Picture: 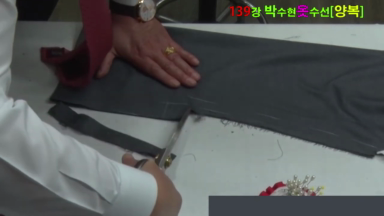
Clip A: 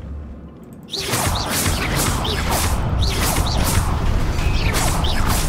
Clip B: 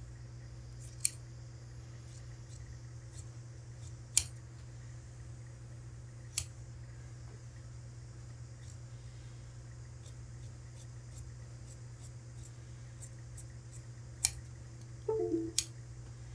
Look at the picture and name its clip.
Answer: B